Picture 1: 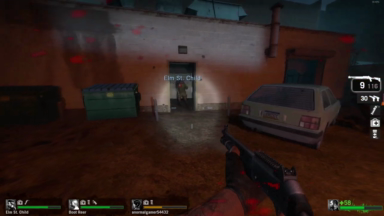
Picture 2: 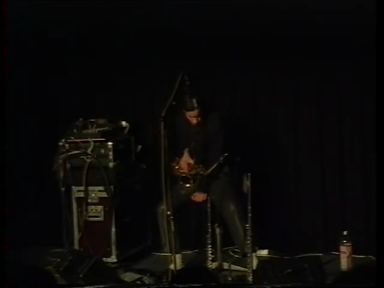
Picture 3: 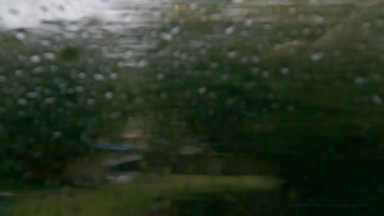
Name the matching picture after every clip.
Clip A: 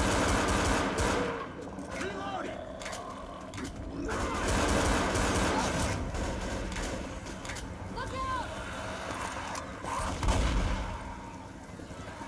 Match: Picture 1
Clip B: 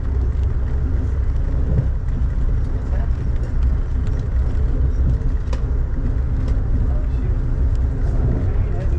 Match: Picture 3